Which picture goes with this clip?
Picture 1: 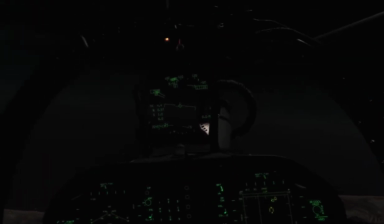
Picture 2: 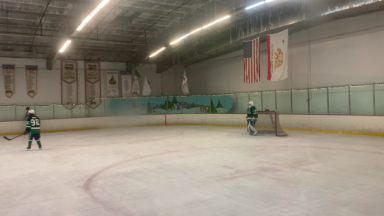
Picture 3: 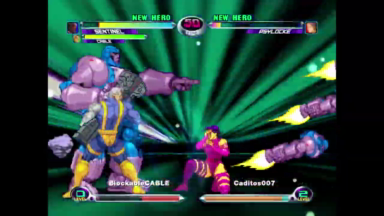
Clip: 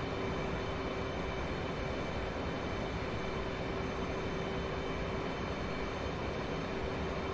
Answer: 1